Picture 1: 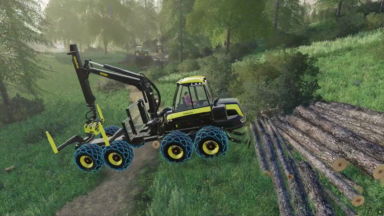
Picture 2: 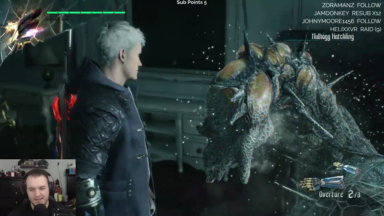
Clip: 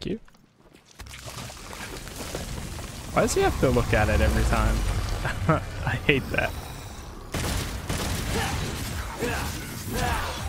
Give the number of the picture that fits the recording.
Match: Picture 2